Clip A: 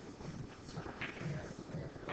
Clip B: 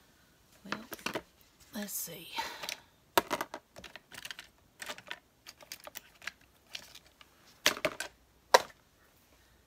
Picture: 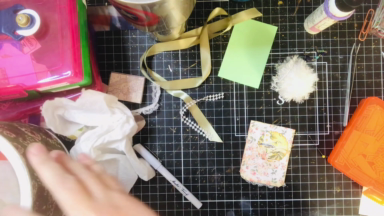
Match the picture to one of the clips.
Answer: B